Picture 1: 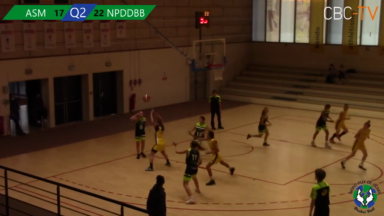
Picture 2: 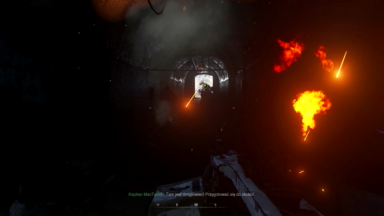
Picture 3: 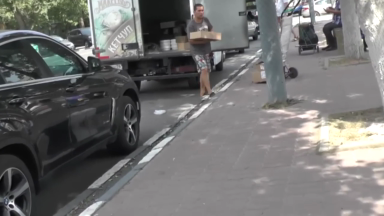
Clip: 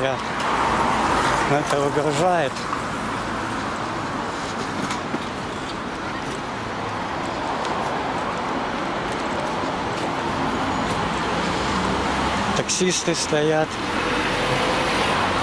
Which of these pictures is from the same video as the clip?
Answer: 3